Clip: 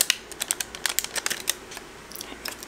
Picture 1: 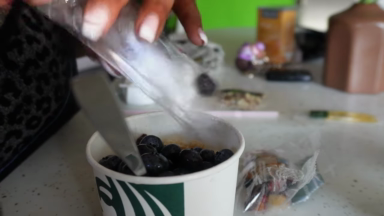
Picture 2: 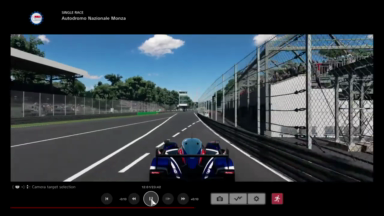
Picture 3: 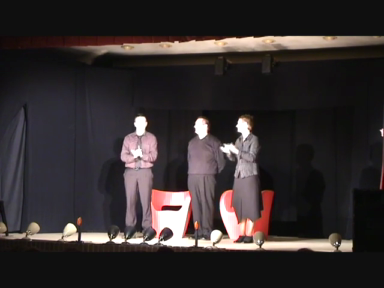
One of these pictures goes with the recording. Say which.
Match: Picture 1